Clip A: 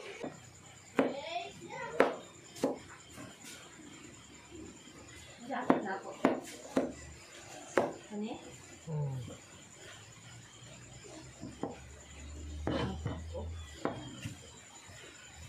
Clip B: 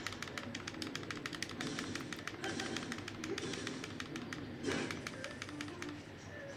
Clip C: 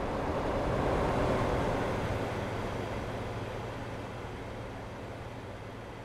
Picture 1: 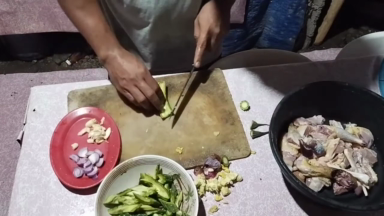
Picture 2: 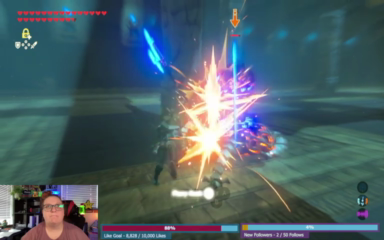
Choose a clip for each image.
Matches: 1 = A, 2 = B